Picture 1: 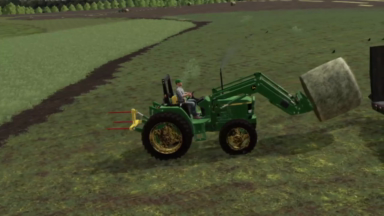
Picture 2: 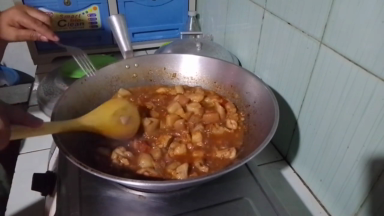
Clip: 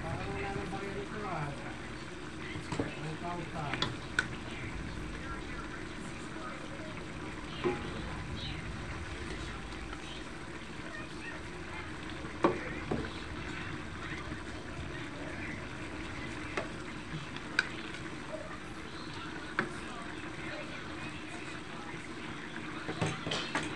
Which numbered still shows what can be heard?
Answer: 2